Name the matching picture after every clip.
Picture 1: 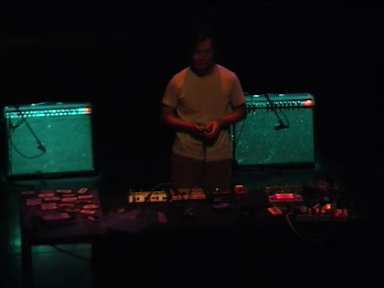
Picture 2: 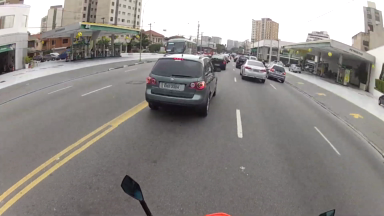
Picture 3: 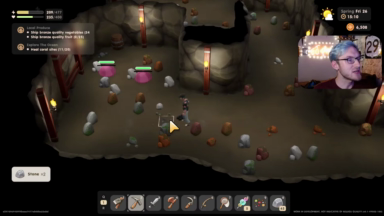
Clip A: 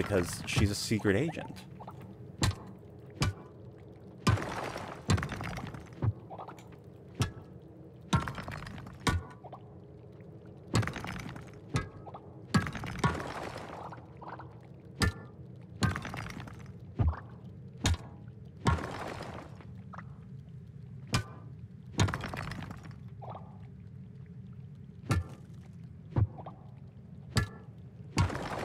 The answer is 3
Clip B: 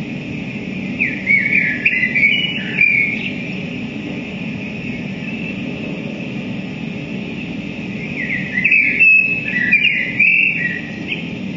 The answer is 1